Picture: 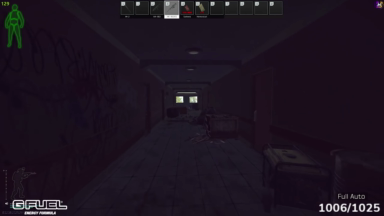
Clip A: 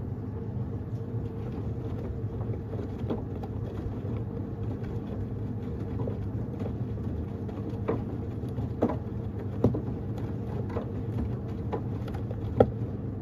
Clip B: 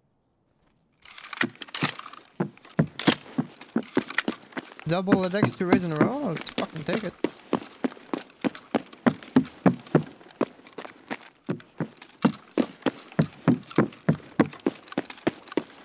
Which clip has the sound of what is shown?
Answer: B